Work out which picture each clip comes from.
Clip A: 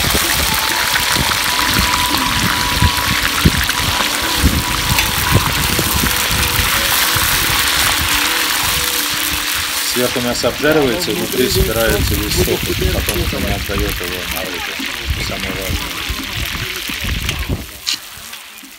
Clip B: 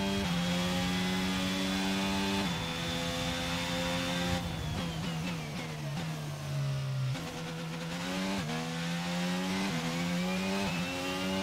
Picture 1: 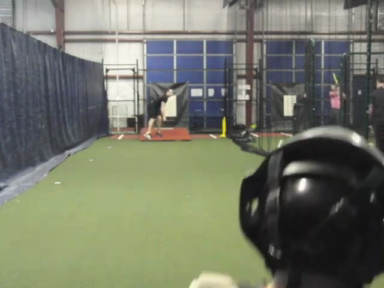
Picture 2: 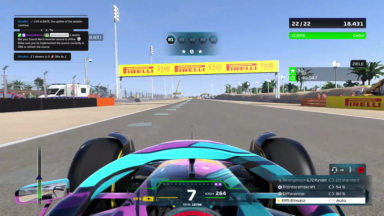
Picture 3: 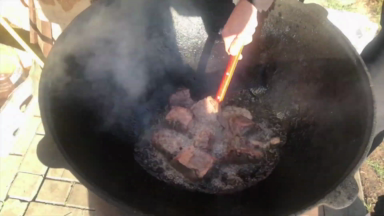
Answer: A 3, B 2